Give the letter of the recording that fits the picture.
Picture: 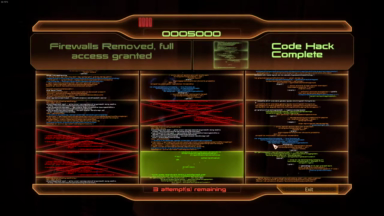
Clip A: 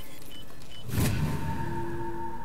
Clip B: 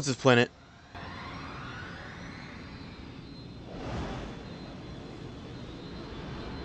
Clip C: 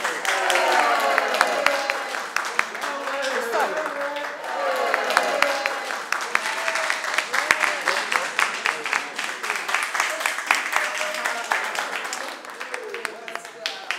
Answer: A